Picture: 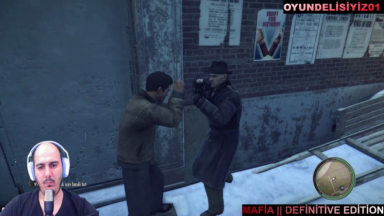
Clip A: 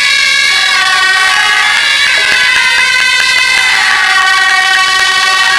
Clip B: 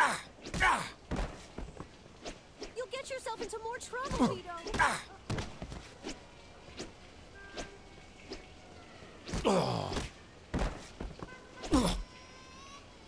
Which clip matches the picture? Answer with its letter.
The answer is B